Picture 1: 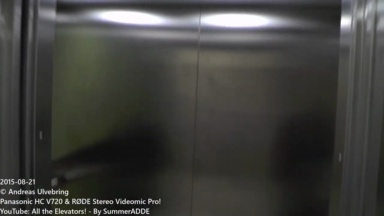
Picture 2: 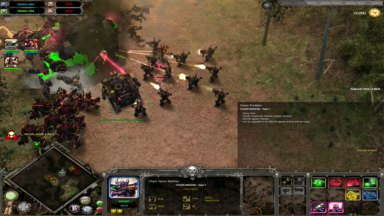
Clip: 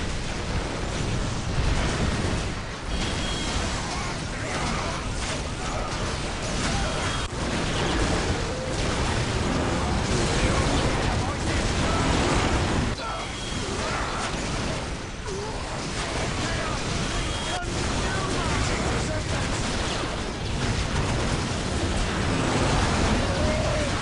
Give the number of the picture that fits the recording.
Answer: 2